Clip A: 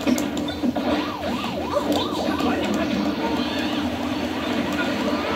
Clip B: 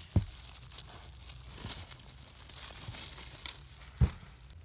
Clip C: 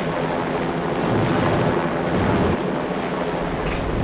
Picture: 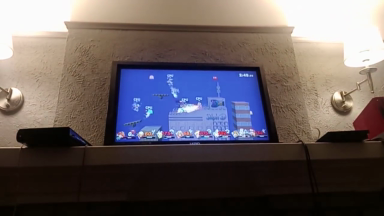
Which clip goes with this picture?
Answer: A